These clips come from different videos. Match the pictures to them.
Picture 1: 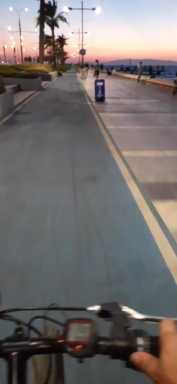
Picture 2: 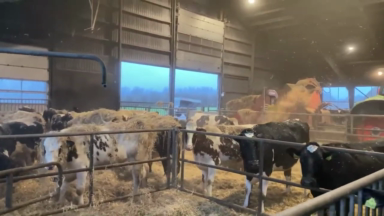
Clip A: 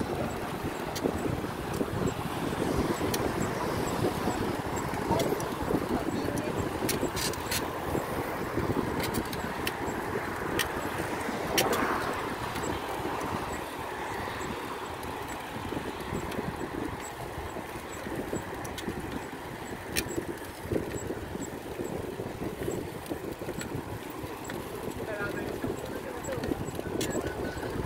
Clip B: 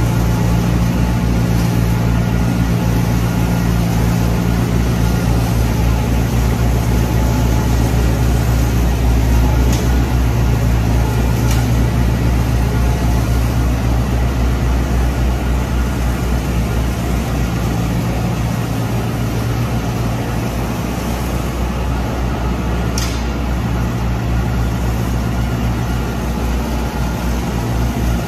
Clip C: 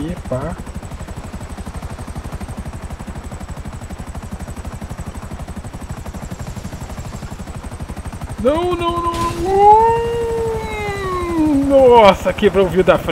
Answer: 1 A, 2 B